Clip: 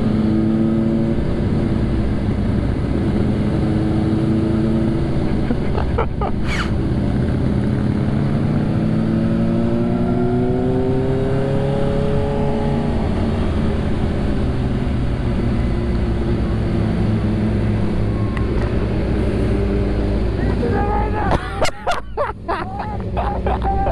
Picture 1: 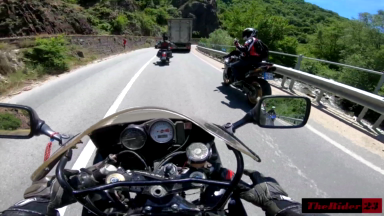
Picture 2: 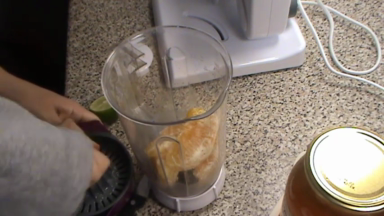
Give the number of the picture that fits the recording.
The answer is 1